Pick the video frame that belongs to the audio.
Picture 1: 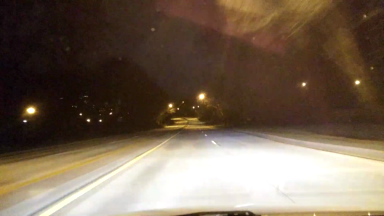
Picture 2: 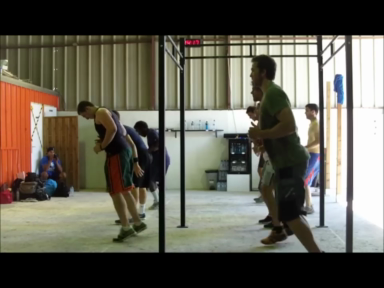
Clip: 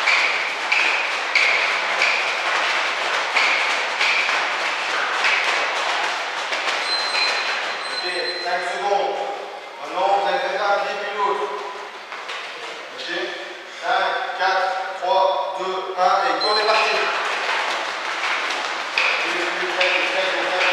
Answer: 2